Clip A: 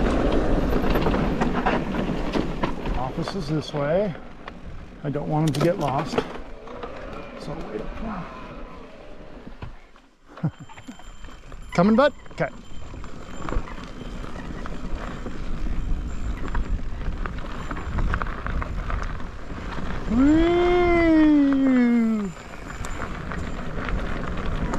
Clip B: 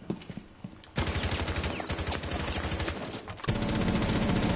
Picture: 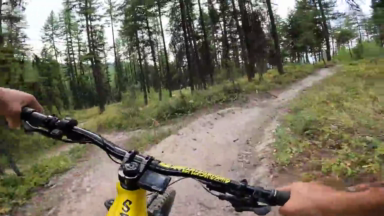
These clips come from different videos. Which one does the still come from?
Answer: A